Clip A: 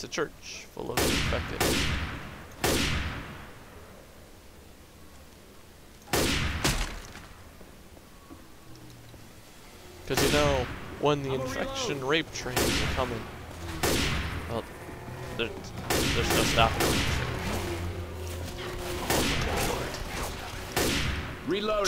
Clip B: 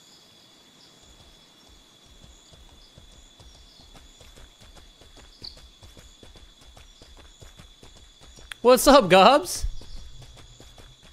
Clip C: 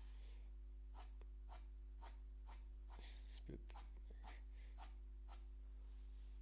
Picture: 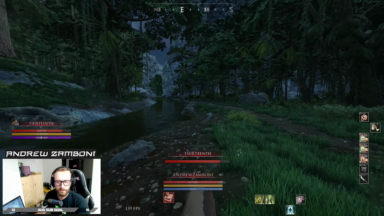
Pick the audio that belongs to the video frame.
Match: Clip B